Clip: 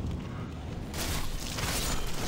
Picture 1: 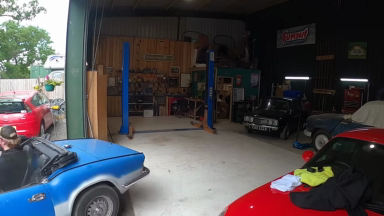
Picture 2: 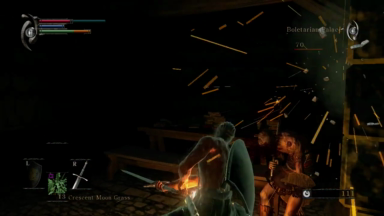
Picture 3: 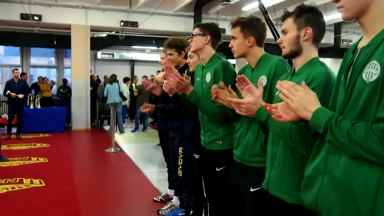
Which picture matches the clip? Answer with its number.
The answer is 2